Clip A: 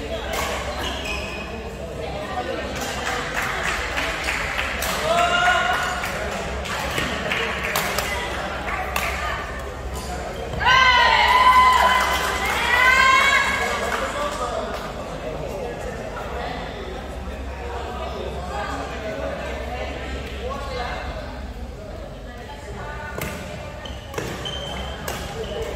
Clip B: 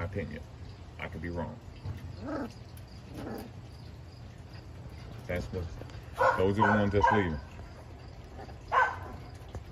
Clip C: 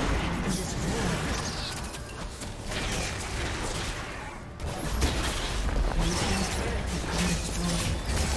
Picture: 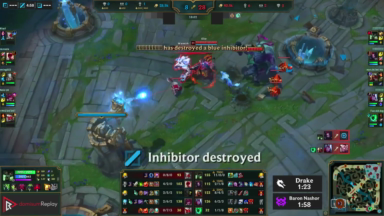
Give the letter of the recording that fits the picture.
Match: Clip C